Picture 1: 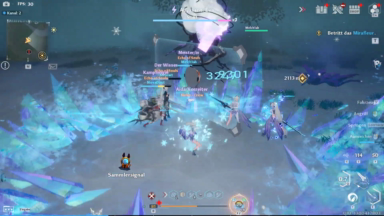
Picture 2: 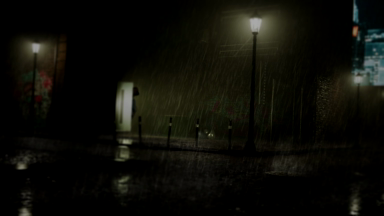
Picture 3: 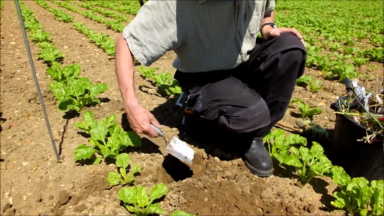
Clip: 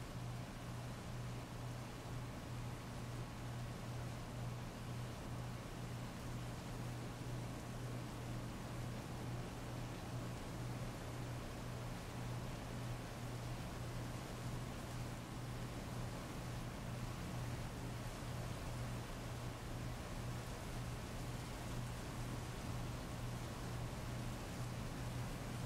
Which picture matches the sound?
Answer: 2